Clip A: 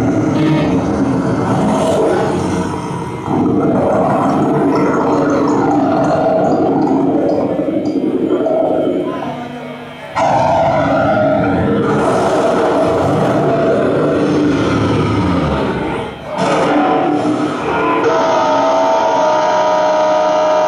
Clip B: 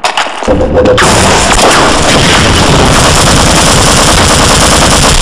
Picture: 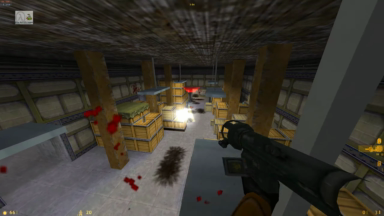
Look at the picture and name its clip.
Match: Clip B